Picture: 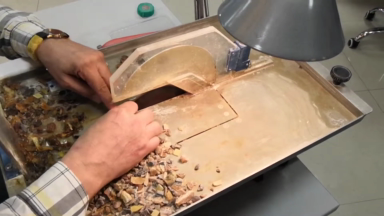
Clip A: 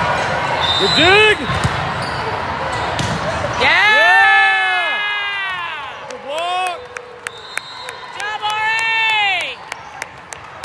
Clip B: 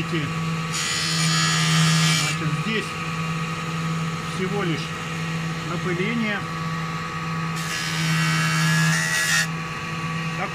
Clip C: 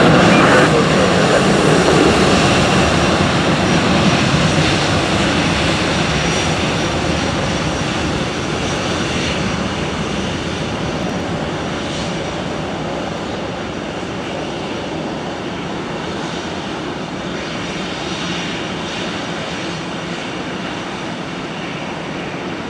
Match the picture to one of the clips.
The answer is B